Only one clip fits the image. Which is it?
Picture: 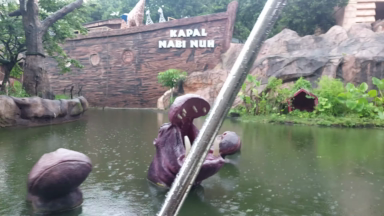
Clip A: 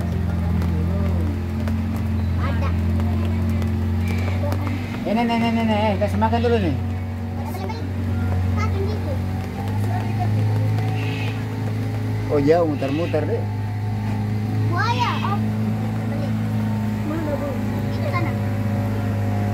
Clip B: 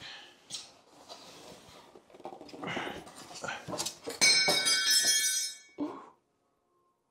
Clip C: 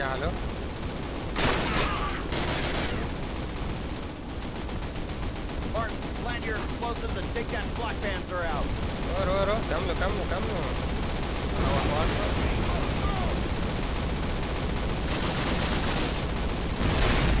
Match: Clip A